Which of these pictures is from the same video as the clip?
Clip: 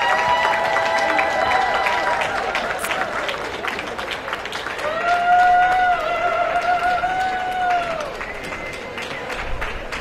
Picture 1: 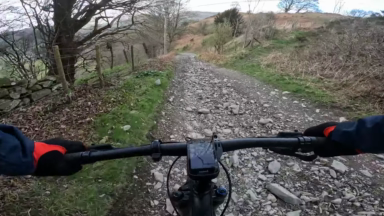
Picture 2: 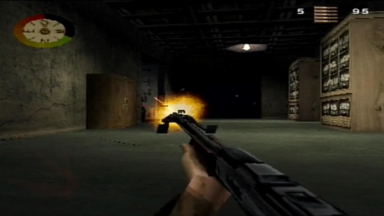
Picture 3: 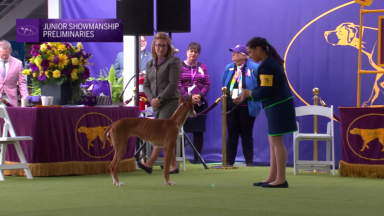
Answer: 3